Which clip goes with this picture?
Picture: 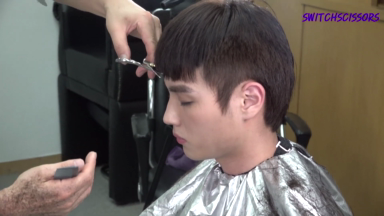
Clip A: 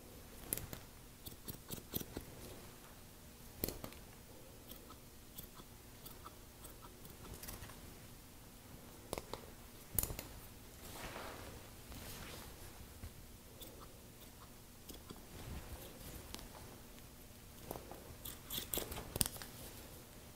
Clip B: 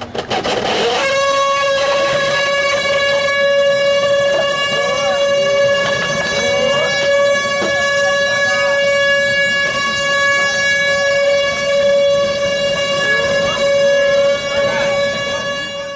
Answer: A